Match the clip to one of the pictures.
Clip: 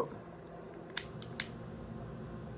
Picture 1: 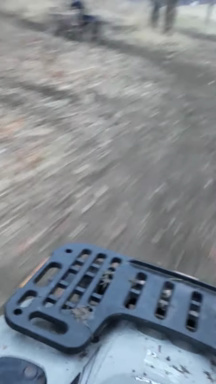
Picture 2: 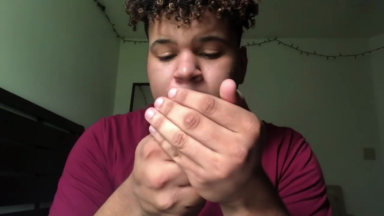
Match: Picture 2